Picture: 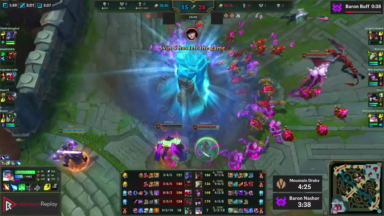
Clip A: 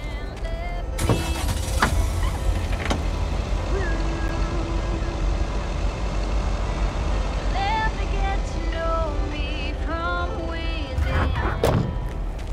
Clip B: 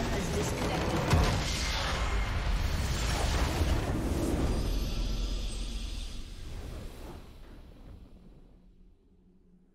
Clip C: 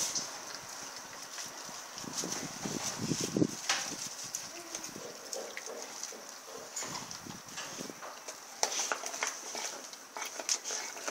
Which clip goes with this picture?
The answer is B